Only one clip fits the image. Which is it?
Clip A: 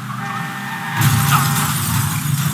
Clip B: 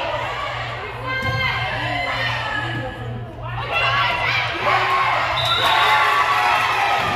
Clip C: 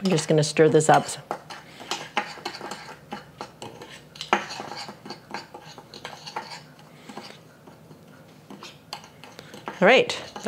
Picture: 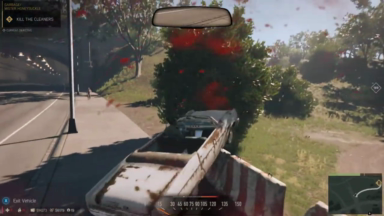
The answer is A